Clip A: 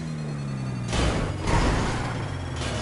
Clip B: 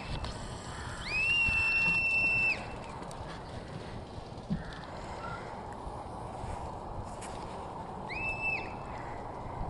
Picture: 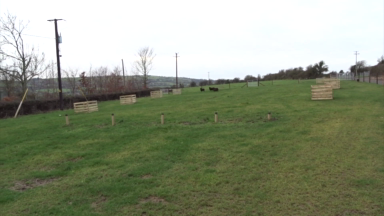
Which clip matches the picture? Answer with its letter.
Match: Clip B